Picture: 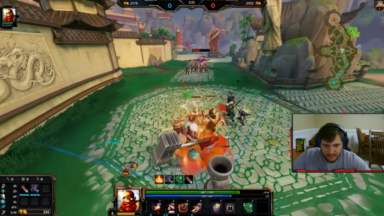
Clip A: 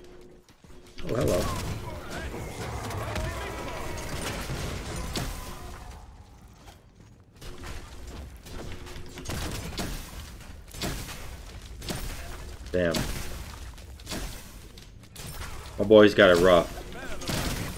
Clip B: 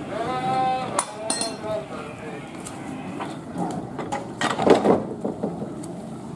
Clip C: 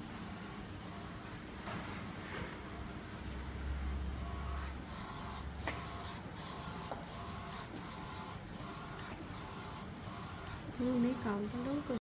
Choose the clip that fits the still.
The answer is A